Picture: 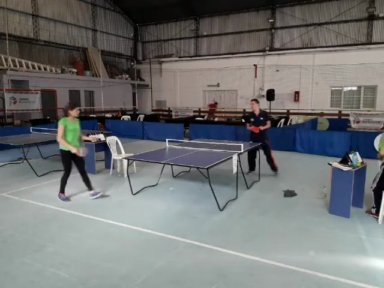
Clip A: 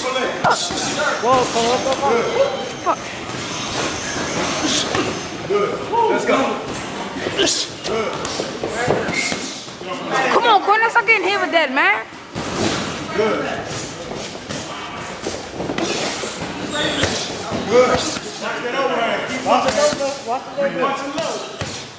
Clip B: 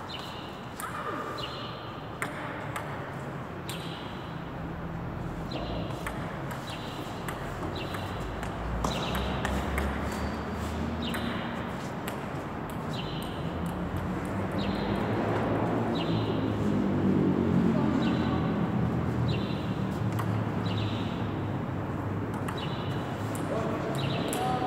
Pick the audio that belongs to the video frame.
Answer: B